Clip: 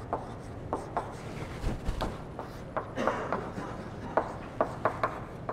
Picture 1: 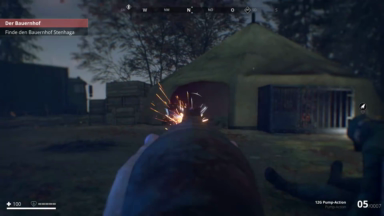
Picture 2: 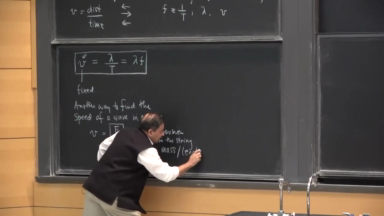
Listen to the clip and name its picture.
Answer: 2